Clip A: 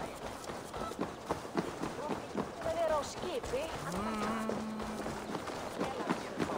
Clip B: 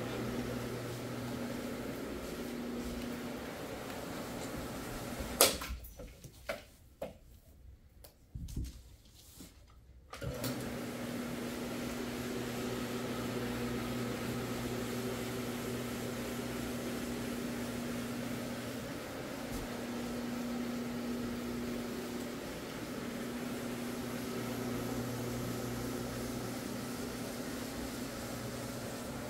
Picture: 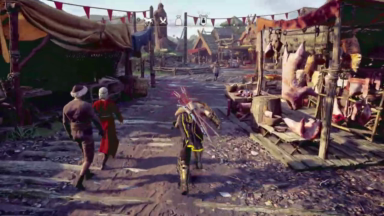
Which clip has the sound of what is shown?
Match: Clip A